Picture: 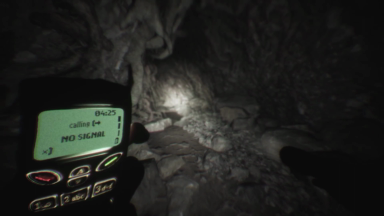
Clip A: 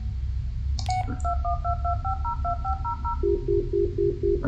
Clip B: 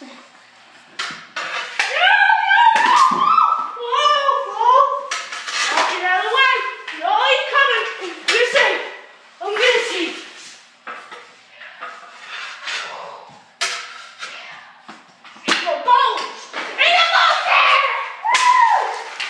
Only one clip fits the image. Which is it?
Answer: A